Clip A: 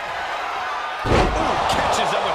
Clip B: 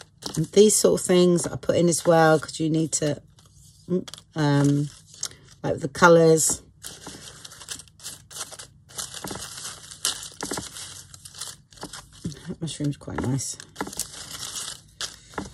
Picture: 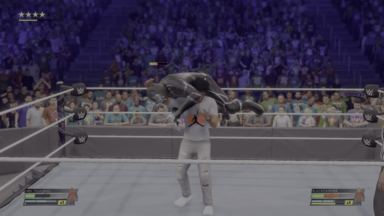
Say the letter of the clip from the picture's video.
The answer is A